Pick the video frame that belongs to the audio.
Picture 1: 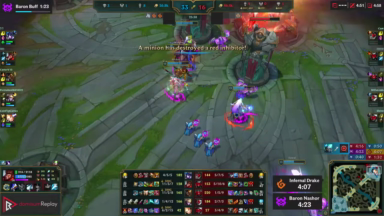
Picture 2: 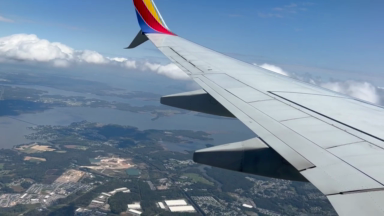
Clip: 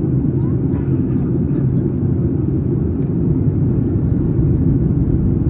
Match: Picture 2